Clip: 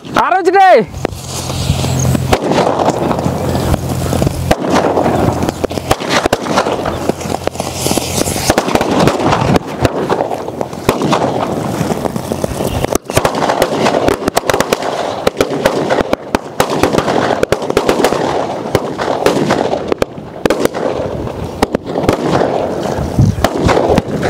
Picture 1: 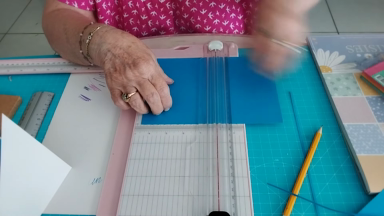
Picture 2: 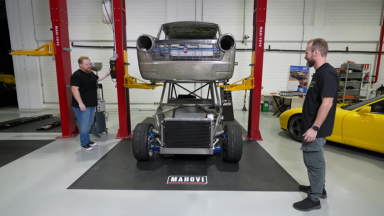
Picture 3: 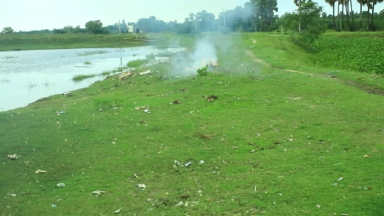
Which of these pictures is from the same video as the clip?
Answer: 3